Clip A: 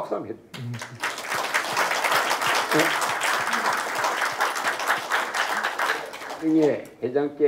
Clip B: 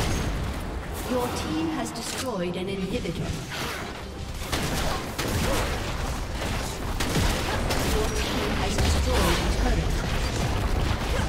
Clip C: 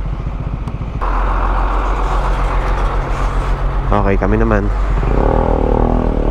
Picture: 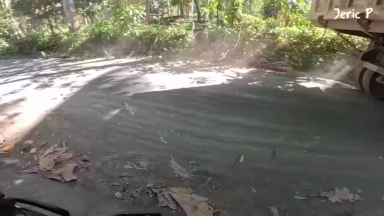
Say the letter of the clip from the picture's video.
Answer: C